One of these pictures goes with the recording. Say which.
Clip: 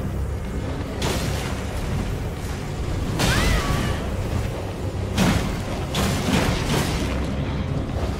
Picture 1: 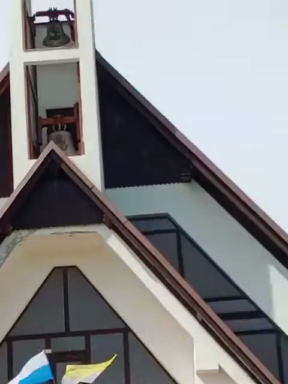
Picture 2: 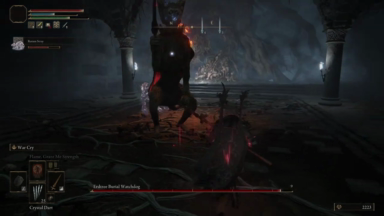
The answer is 2